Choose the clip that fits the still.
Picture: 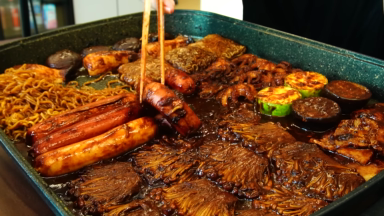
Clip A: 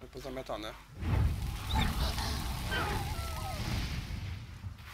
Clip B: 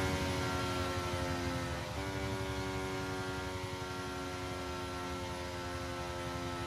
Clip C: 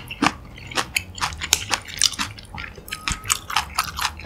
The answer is C